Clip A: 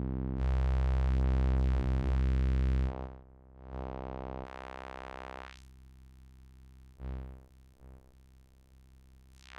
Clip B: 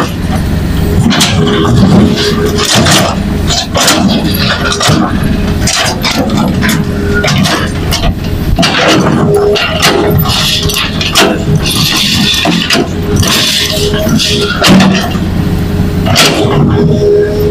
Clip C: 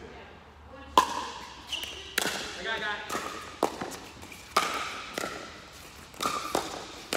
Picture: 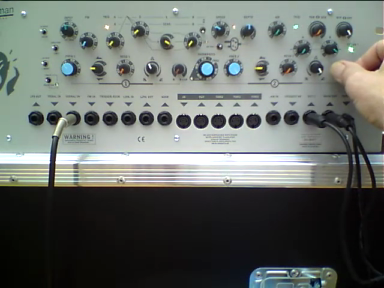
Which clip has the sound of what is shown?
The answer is A